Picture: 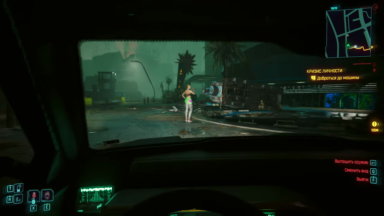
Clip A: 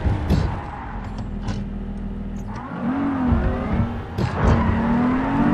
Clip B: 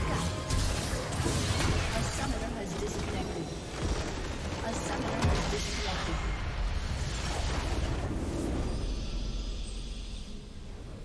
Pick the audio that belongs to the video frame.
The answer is A